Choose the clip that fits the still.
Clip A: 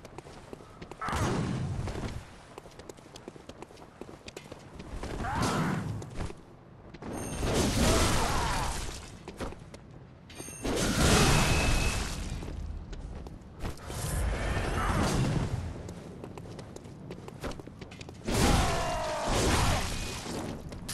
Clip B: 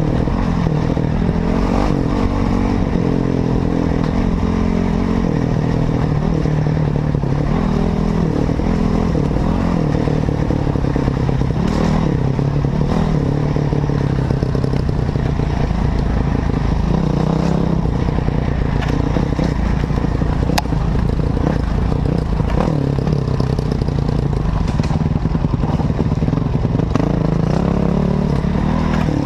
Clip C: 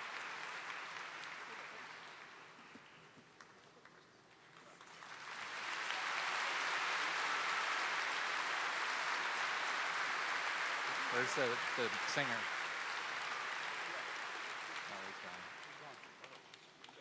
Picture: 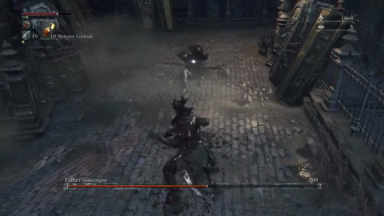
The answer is A